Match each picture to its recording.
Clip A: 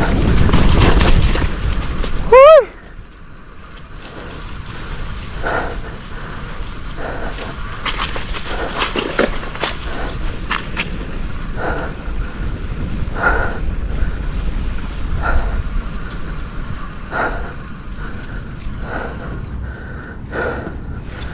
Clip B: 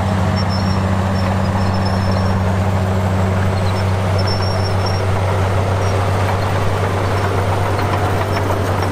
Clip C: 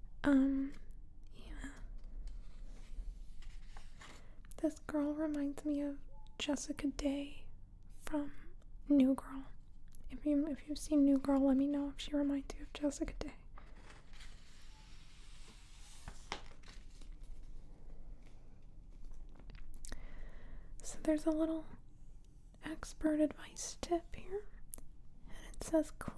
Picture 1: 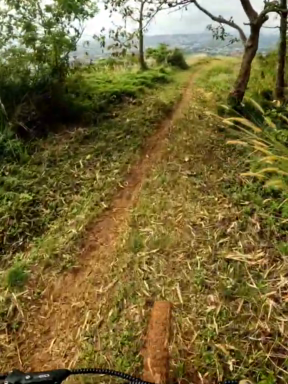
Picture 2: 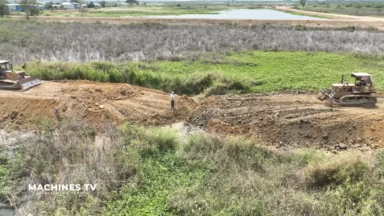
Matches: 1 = A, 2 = B